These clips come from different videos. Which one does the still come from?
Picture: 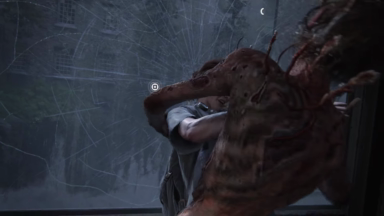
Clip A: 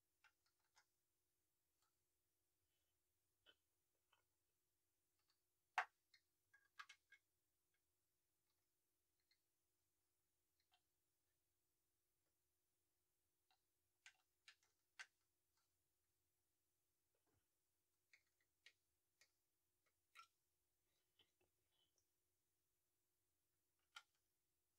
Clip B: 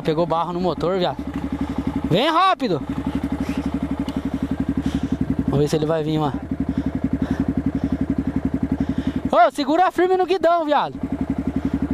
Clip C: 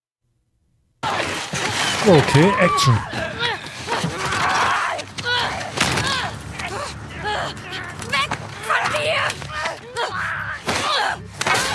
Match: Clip C